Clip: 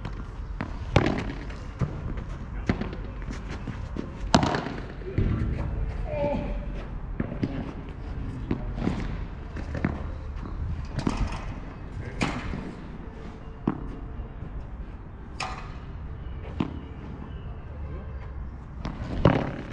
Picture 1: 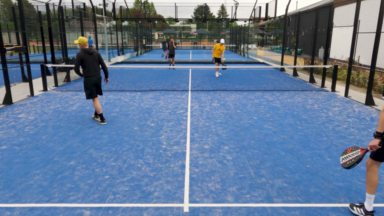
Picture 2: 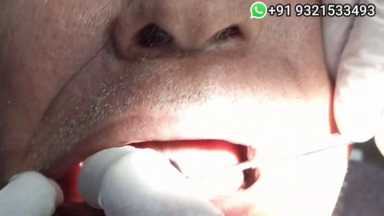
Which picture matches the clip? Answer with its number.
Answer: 1